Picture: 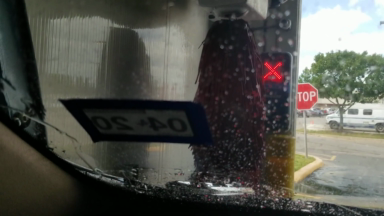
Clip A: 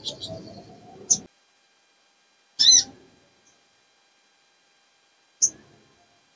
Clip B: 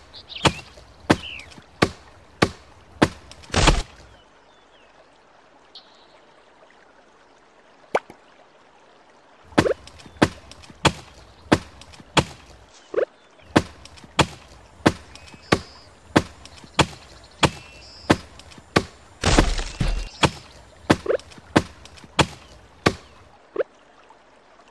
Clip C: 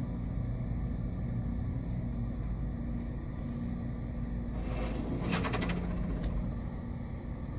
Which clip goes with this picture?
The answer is C